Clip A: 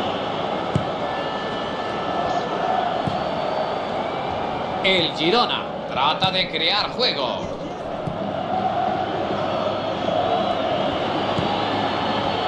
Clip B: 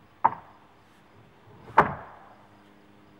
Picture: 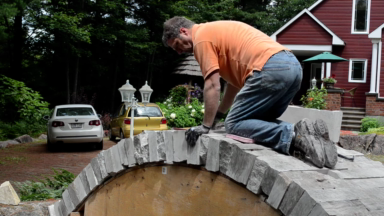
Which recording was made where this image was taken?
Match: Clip B